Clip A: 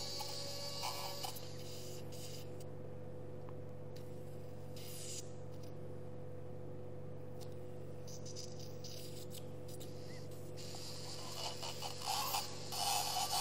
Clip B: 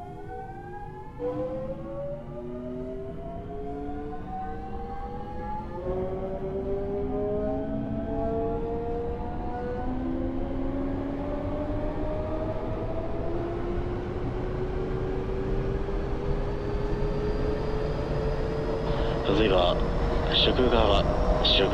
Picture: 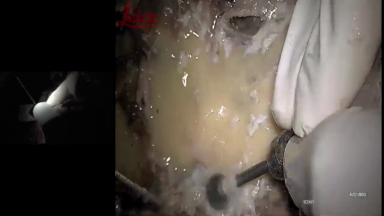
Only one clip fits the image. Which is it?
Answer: A